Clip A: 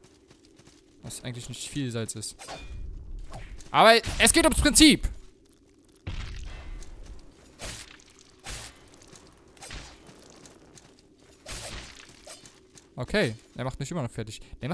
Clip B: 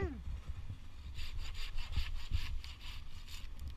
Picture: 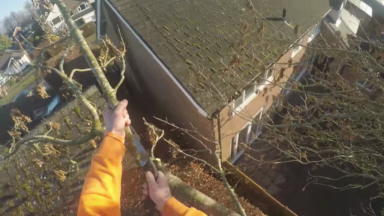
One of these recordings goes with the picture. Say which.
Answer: B